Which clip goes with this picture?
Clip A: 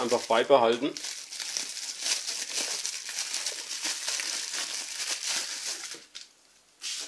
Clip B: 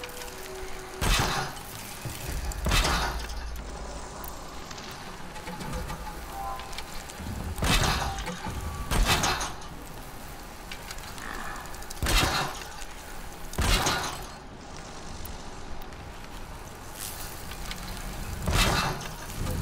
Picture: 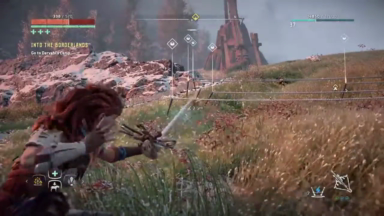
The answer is B